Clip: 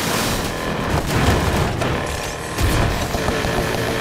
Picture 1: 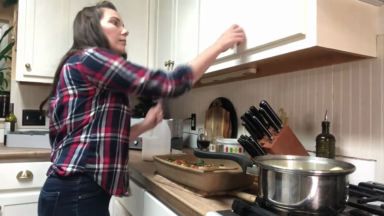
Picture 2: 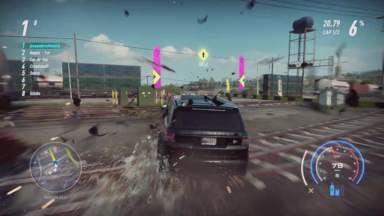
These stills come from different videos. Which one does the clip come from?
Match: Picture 2